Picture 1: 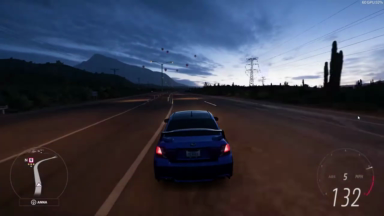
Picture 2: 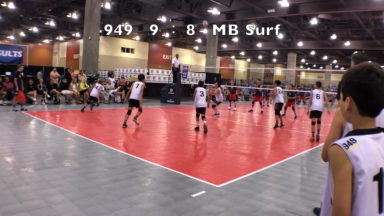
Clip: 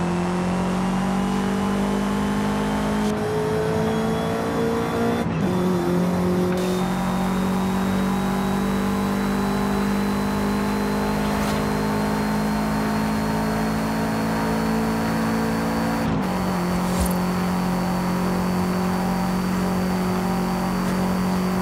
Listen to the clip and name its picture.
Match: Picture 1